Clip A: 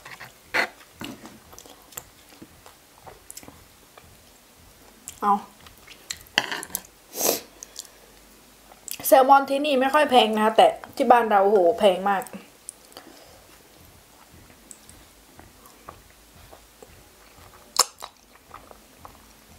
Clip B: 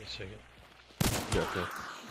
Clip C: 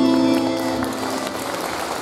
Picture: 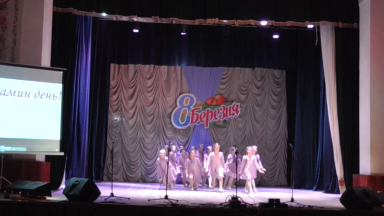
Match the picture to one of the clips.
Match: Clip C